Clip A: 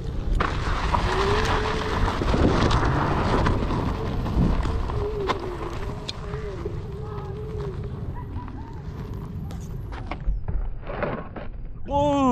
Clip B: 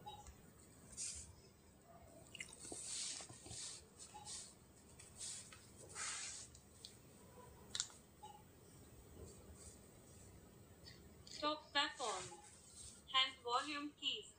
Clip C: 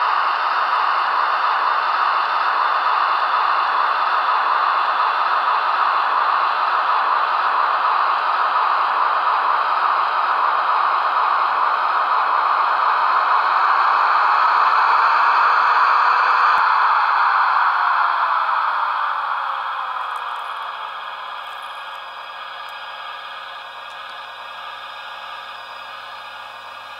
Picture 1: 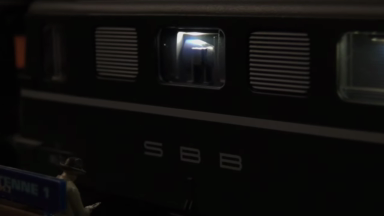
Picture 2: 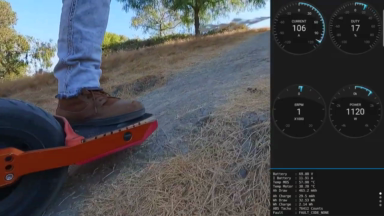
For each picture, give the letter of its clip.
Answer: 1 C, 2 A